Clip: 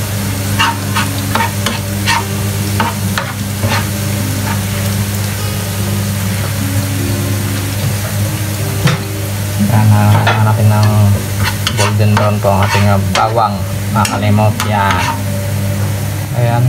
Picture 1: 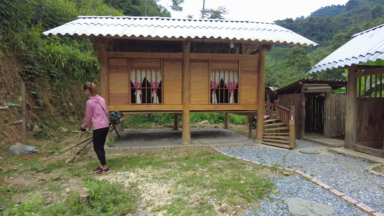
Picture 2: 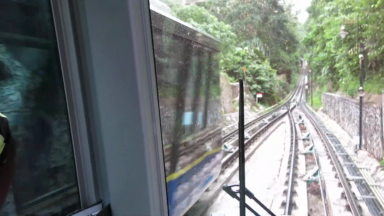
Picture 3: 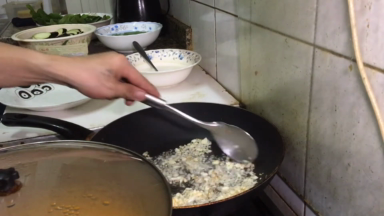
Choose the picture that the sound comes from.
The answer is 3